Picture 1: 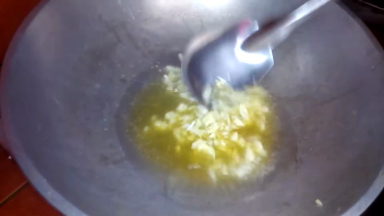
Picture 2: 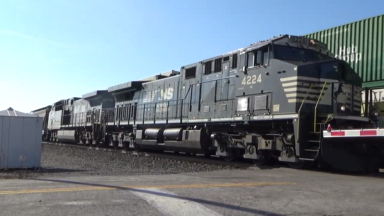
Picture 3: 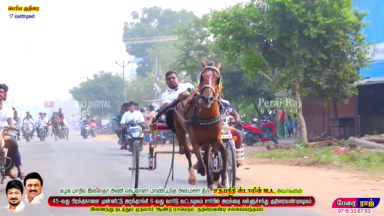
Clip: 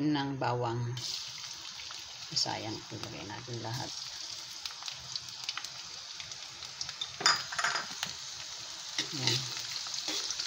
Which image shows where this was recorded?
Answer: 1